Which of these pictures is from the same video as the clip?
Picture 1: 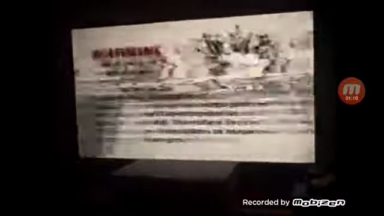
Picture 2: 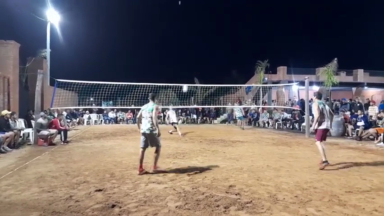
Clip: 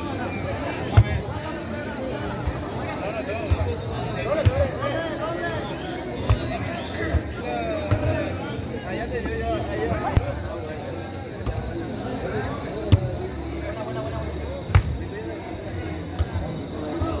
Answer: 2